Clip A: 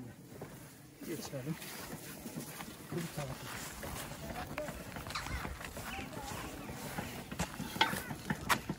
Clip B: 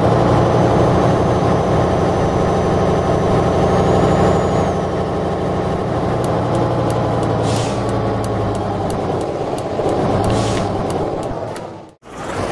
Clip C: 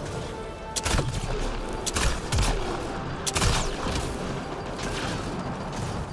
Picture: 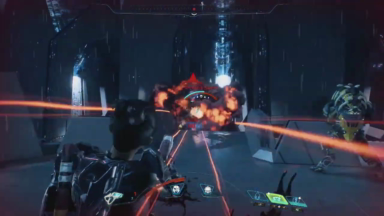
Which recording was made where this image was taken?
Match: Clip C